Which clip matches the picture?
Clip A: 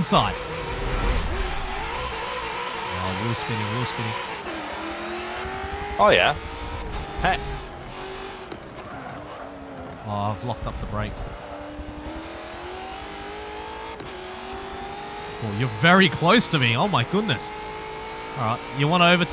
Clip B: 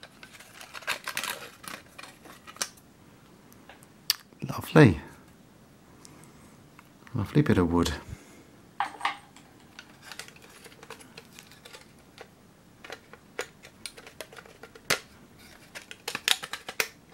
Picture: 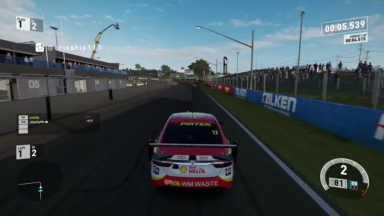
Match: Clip A